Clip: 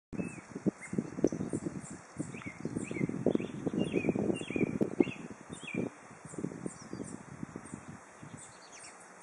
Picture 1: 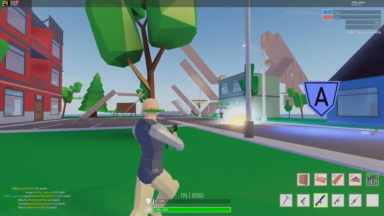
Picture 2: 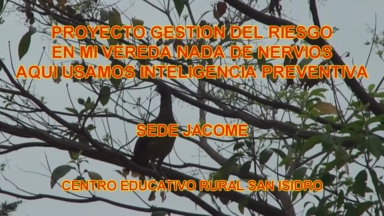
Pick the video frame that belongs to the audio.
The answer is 2